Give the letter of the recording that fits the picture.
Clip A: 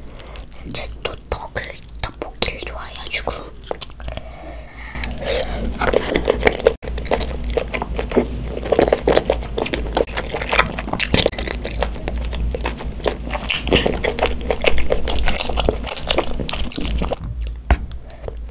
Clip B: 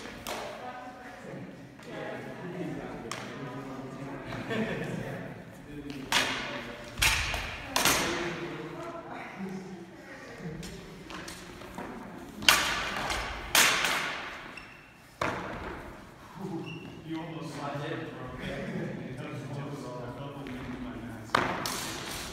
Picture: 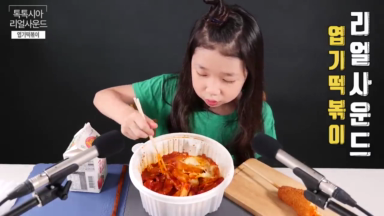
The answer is A